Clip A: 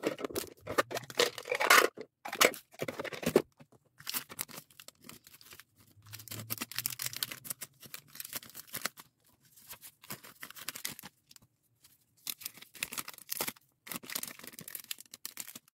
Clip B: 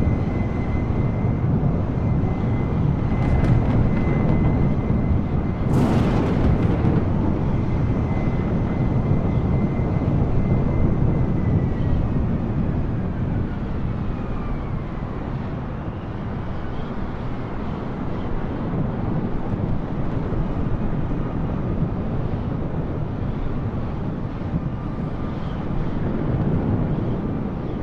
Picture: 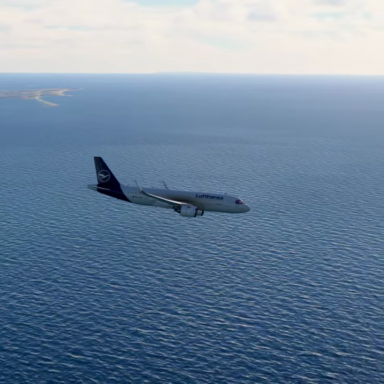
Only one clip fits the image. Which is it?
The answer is B